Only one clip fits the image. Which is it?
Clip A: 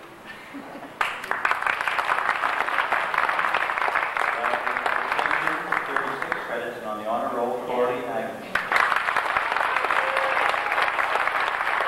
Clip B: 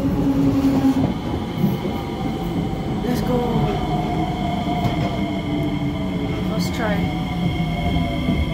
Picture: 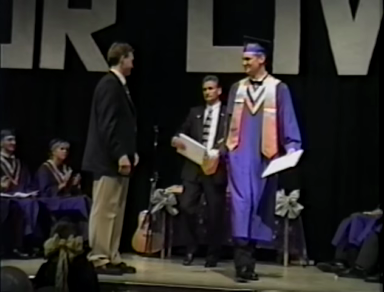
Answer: A